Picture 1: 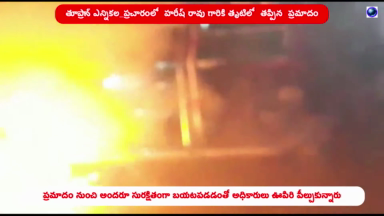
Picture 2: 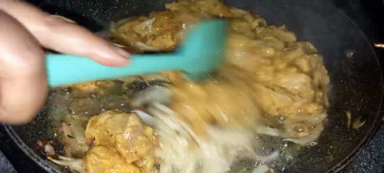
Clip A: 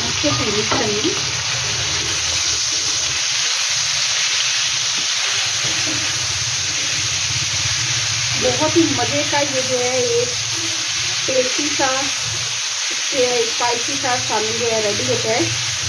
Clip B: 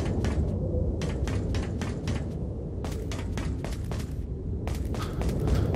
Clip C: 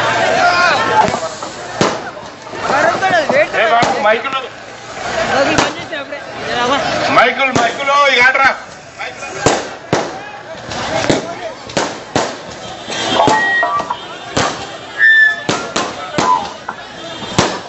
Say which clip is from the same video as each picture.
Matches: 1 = C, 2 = A